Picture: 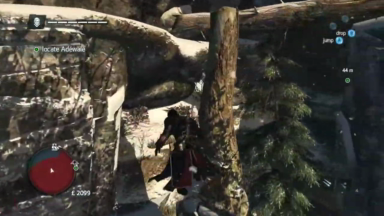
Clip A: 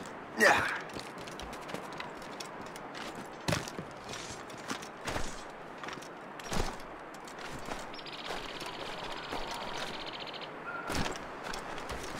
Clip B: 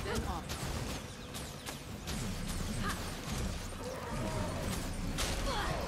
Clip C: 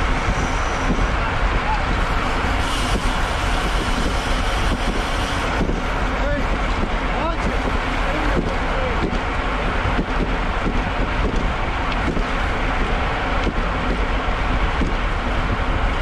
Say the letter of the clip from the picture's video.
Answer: A